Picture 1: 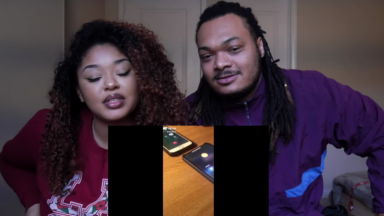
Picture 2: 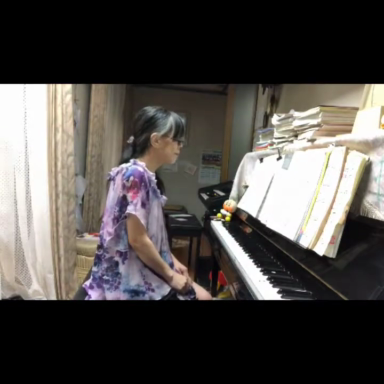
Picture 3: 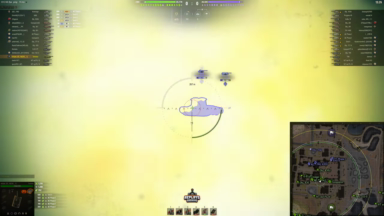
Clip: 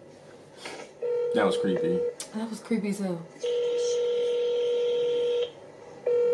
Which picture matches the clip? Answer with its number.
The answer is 1